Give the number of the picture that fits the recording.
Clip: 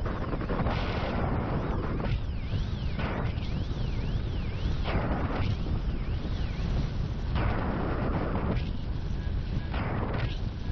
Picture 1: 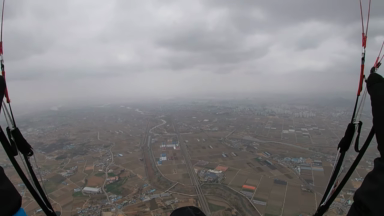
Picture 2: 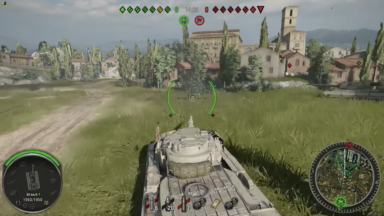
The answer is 1